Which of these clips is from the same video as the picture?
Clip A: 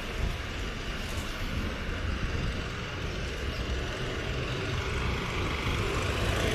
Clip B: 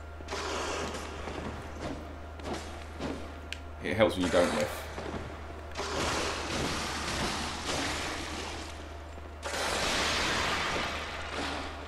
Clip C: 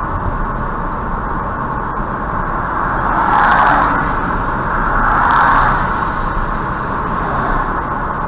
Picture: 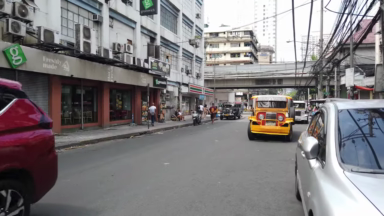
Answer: A